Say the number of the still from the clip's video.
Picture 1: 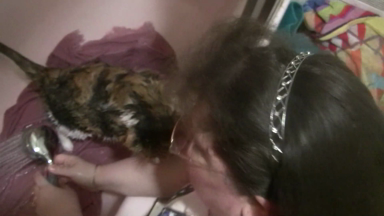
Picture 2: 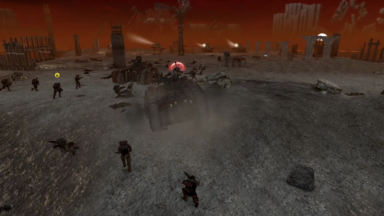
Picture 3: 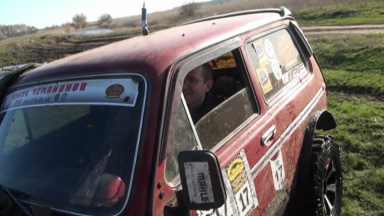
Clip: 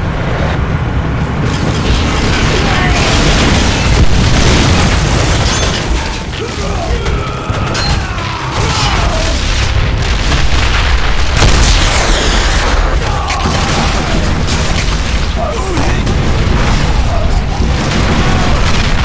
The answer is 2